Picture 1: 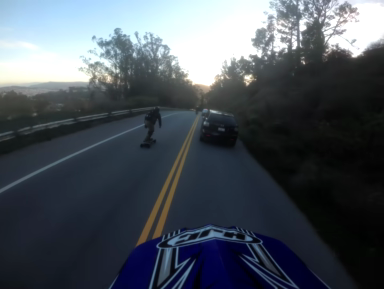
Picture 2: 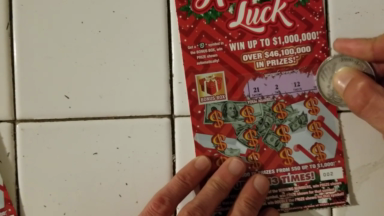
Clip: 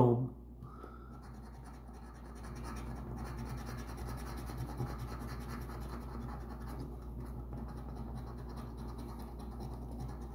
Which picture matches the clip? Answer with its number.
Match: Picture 2